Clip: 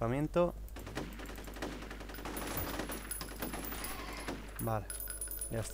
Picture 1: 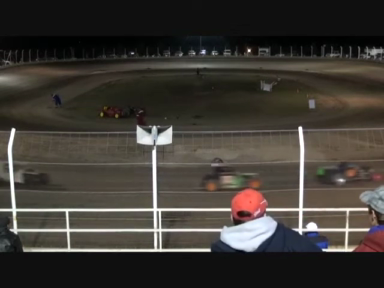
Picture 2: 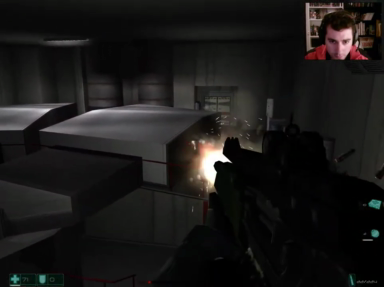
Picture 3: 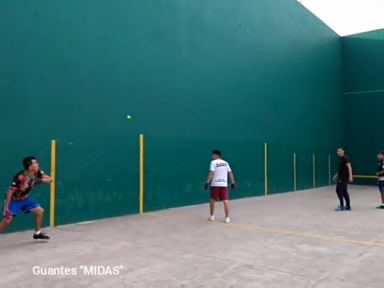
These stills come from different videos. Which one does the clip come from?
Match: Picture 2